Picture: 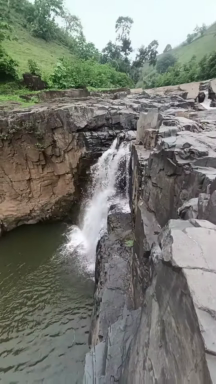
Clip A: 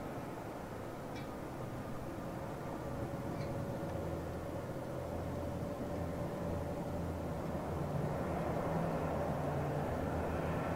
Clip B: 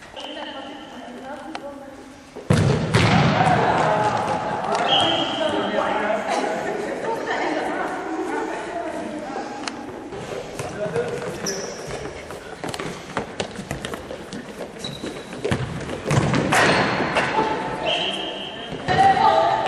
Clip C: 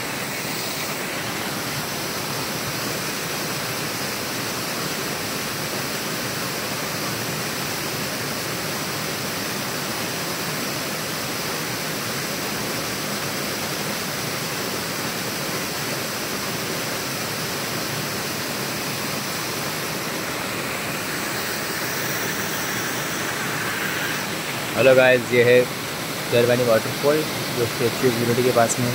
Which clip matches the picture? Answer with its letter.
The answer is C